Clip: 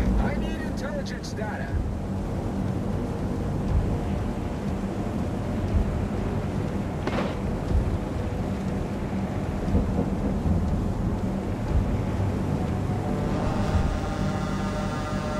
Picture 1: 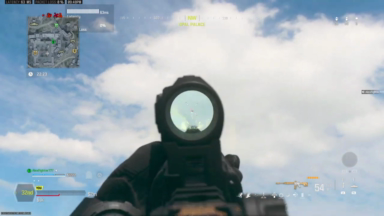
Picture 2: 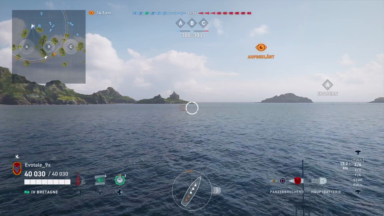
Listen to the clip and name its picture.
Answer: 2